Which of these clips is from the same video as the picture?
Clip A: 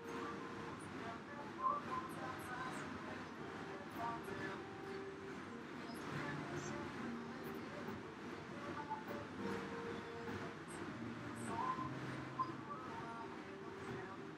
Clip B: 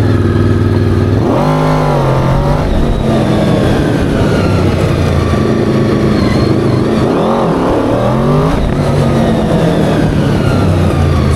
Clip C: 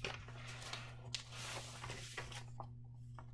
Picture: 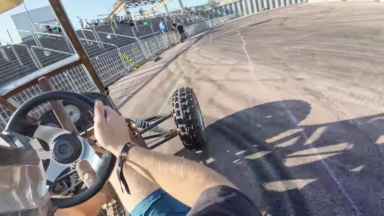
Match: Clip B